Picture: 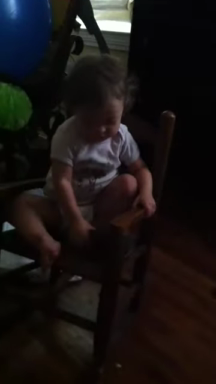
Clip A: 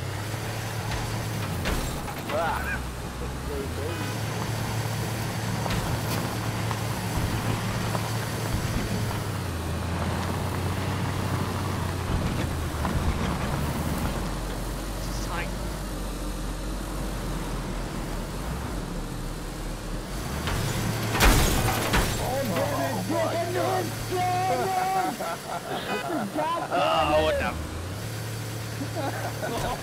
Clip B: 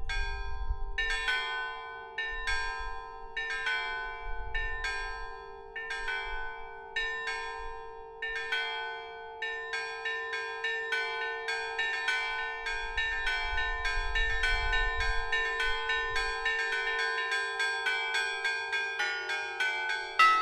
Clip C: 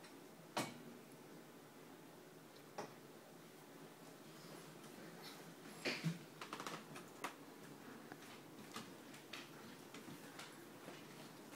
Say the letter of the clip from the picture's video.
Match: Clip C